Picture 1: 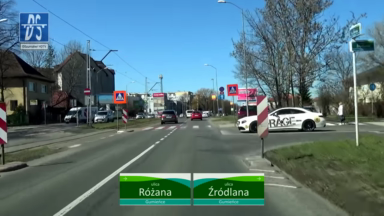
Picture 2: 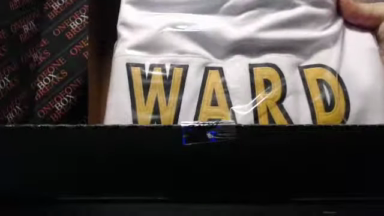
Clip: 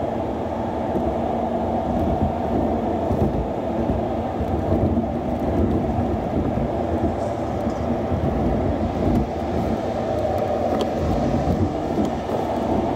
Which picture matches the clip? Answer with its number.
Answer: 1